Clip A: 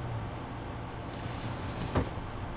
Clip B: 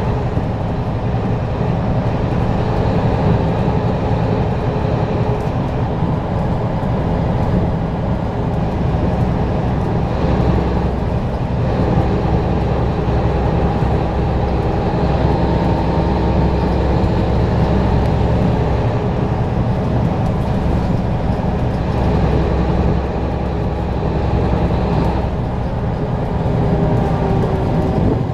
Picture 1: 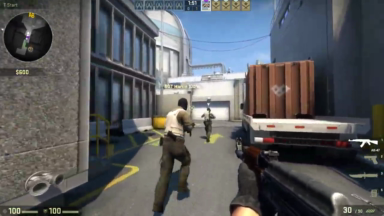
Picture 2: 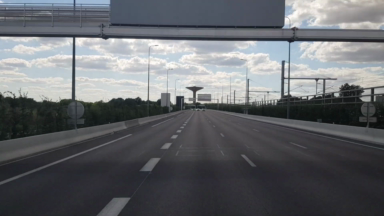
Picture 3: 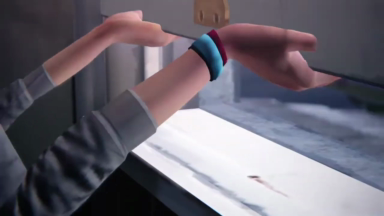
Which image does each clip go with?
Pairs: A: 3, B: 2